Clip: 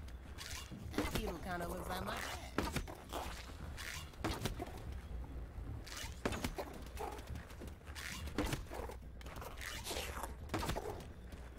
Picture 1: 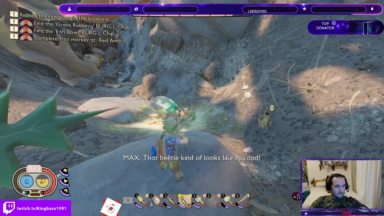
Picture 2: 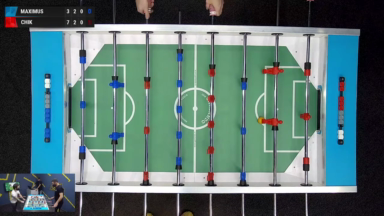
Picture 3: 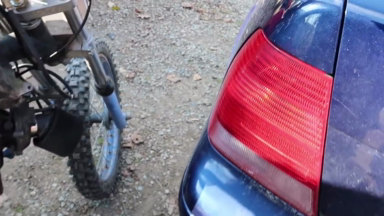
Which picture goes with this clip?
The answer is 1